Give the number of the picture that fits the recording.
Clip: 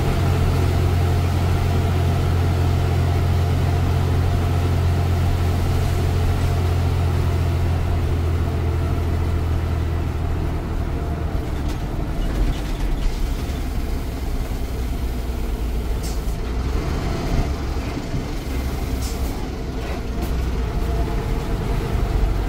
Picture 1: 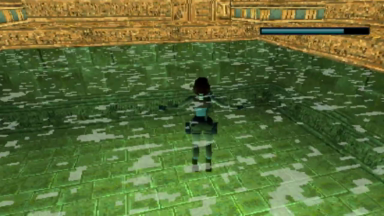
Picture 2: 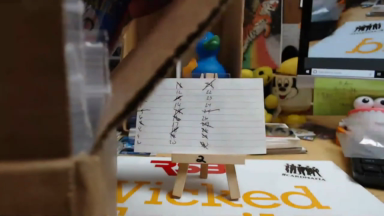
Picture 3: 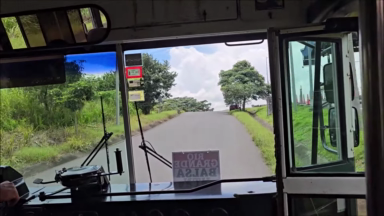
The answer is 3